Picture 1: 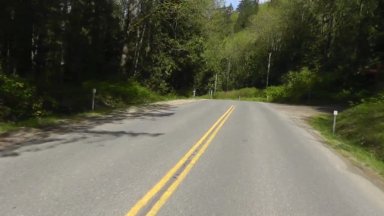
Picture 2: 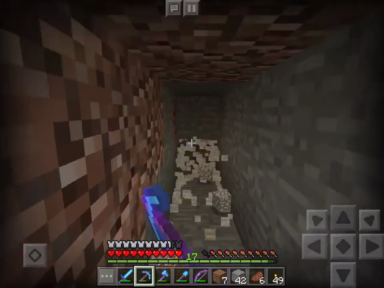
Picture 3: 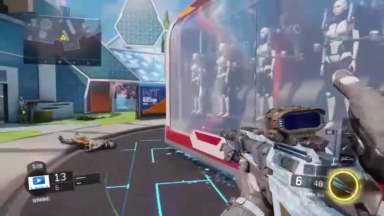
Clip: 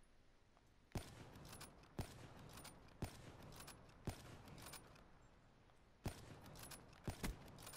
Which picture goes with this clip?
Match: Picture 3